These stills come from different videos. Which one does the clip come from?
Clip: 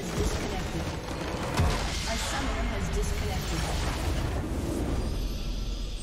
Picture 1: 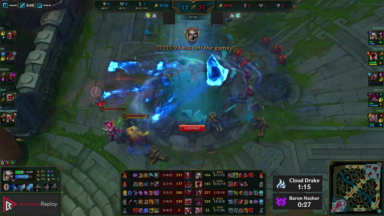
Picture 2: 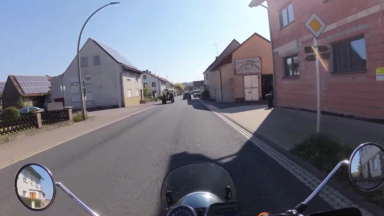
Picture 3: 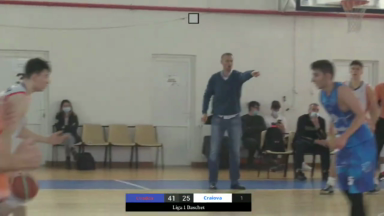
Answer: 1